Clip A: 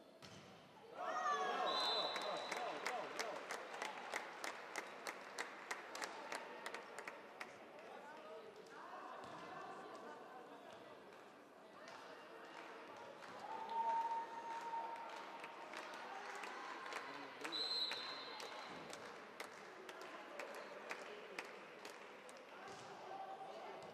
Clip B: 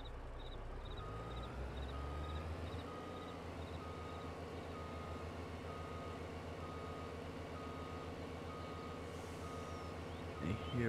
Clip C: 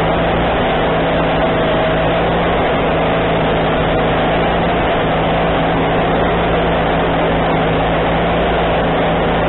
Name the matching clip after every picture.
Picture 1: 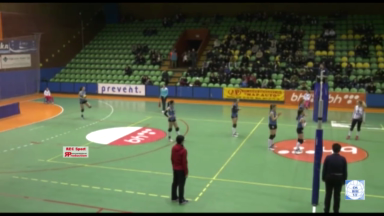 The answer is A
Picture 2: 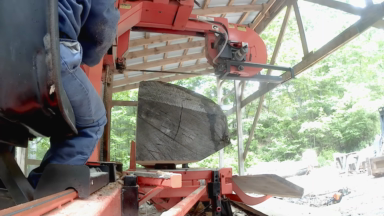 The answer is C